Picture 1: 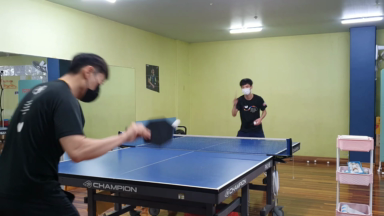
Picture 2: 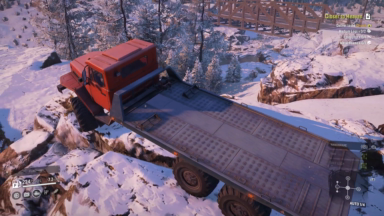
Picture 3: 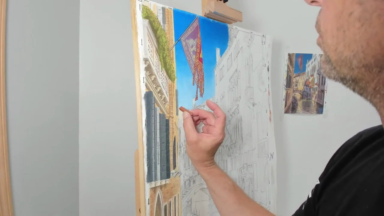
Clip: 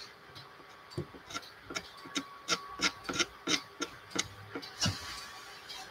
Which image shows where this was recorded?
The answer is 3